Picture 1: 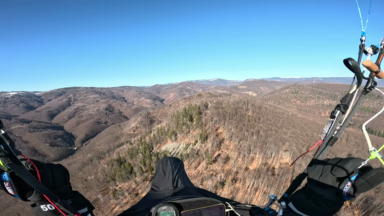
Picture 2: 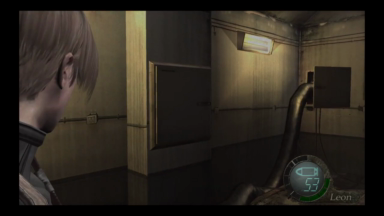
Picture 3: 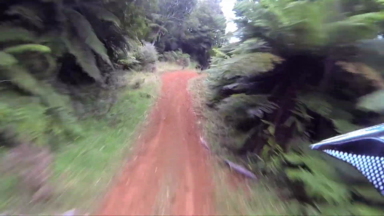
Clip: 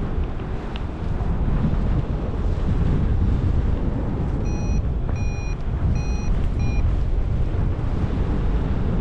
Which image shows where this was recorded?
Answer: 1